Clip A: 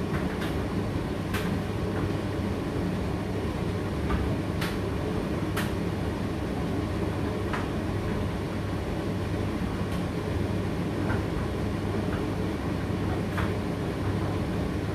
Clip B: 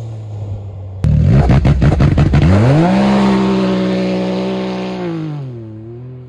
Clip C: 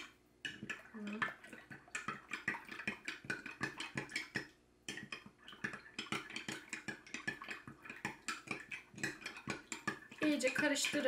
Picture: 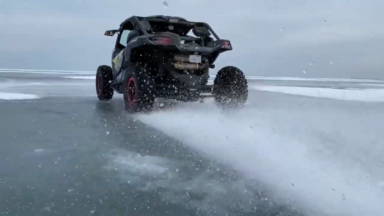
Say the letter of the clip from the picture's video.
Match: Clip B